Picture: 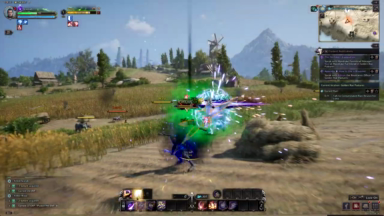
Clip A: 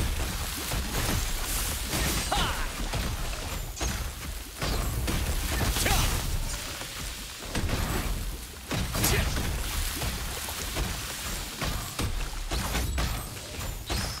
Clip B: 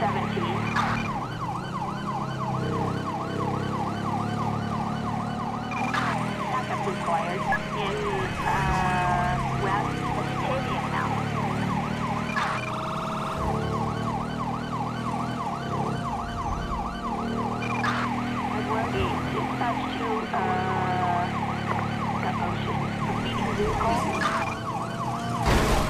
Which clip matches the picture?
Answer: A